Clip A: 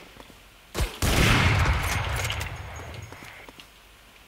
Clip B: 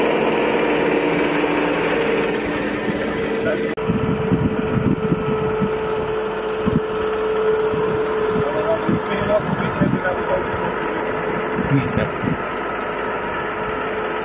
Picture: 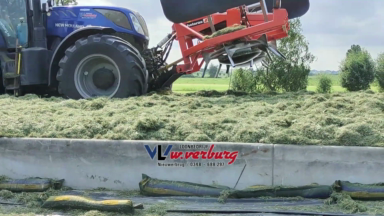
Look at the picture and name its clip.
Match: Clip B